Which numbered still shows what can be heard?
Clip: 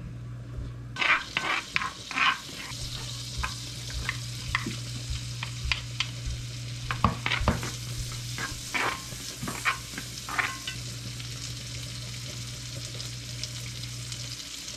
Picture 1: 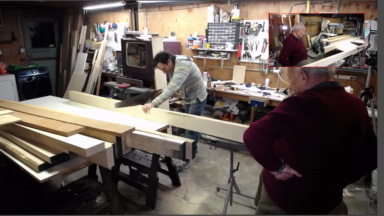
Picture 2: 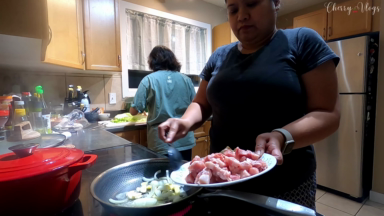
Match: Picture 2